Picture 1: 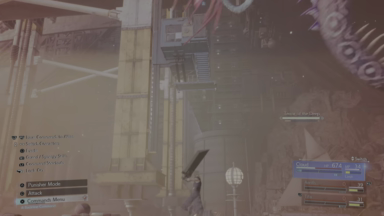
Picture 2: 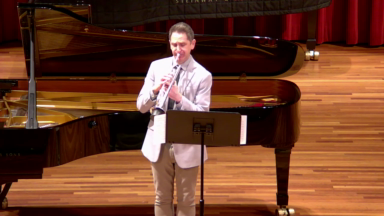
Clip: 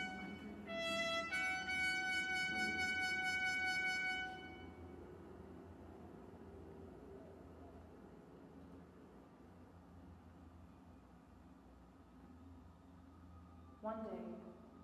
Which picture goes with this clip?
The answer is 2